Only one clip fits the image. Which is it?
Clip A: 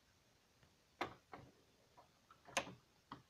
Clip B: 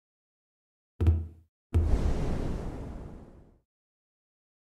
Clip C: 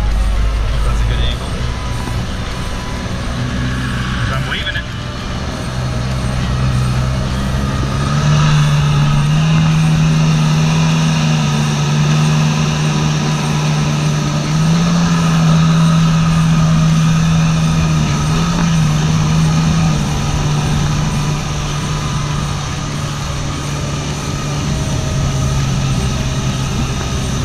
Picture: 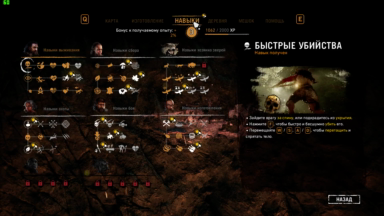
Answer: B